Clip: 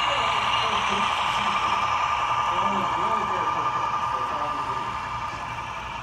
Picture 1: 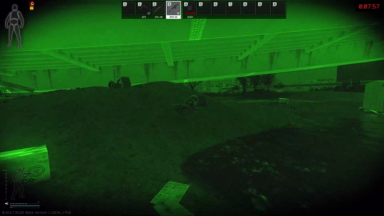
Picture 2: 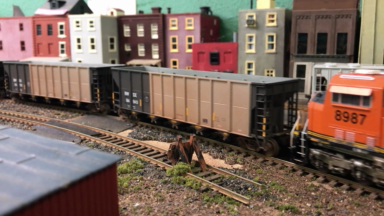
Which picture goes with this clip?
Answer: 2